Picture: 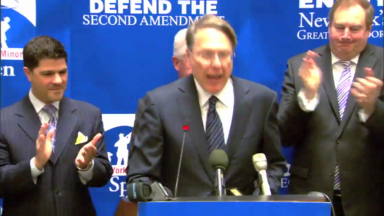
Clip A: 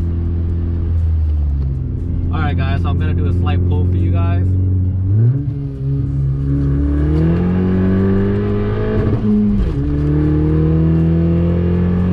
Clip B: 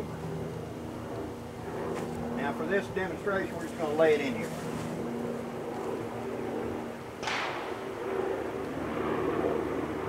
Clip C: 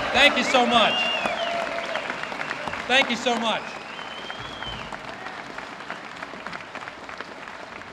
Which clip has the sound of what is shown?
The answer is C